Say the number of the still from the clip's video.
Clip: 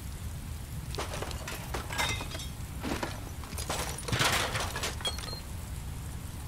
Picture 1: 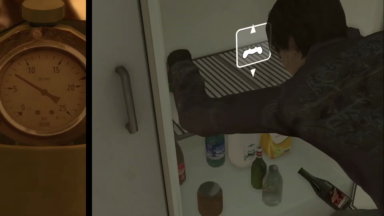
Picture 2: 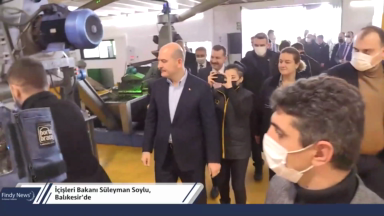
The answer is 1